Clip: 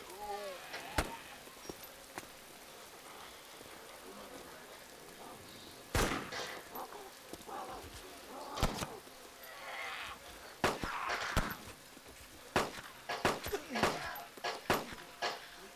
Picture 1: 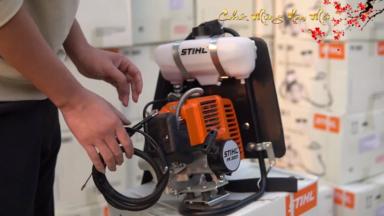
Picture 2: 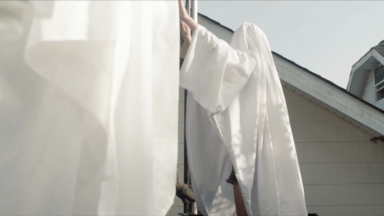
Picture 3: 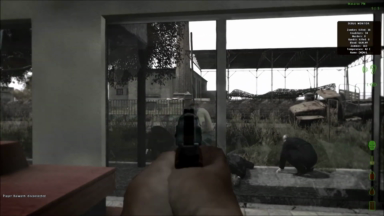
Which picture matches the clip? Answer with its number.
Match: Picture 3